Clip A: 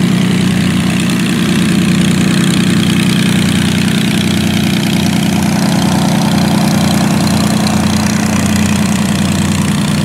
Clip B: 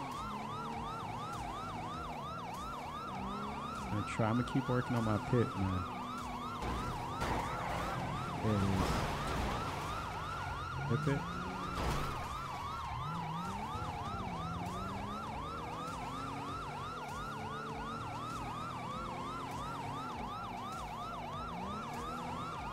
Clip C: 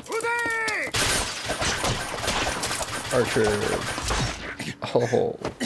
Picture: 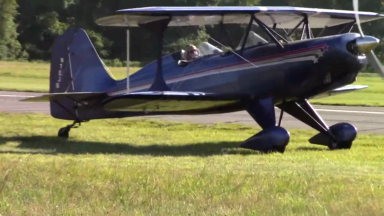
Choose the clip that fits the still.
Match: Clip A